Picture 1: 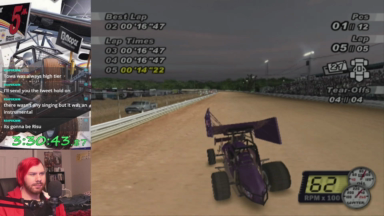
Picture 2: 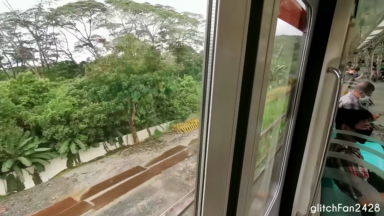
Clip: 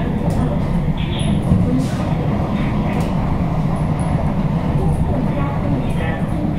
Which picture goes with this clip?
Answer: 2